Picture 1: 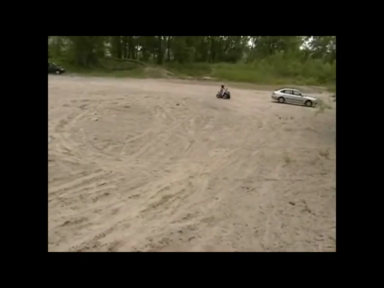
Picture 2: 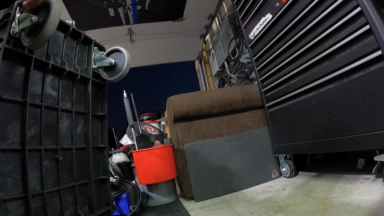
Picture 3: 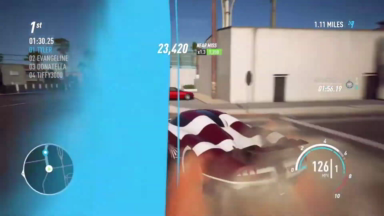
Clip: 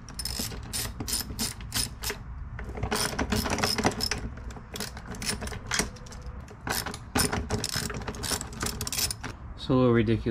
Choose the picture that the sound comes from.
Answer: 2